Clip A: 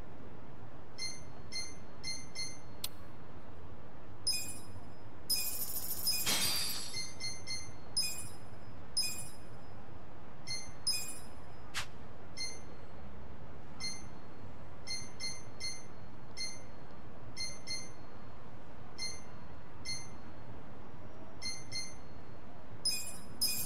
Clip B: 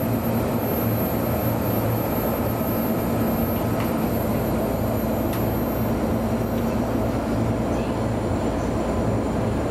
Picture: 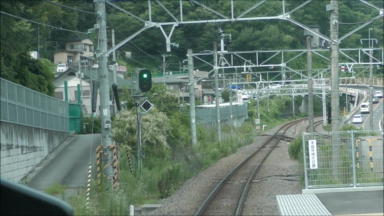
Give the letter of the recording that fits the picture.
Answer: B